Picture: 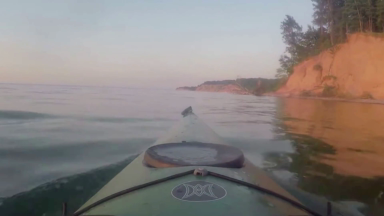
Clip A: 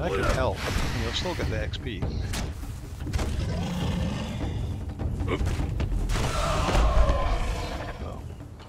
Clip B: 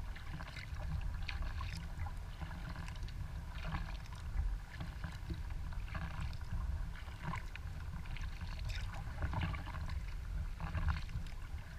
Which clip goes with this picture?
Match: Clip B